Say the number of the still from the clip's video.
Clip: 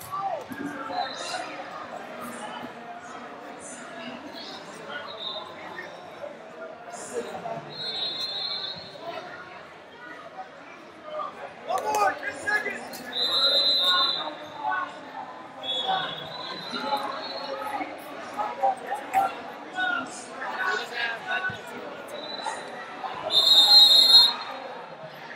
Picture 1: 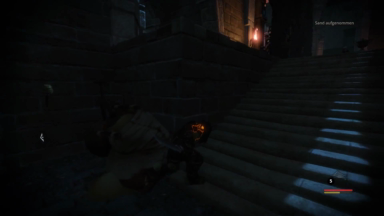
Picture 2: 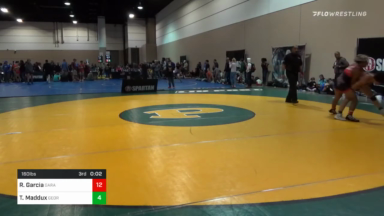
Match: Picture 2